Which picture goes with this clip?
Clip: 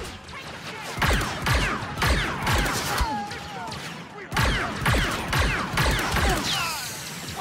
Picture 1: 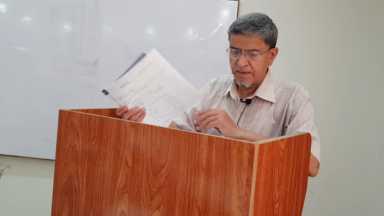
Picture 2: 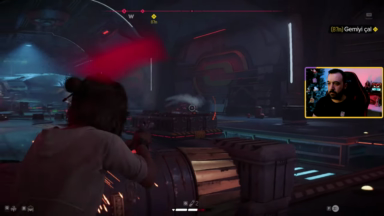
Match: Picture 2